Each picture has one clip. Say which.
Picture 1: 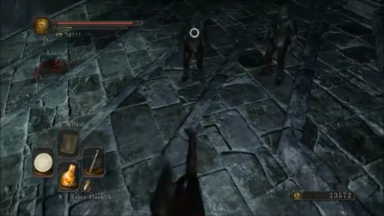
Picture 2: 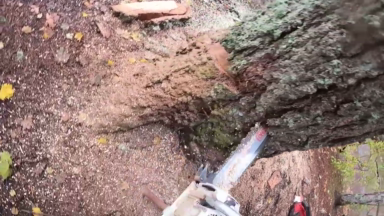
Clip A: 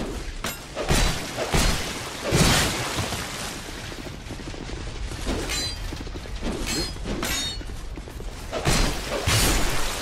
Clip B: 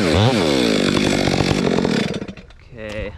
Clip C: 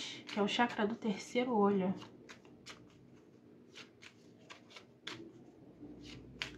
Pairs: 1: A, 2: B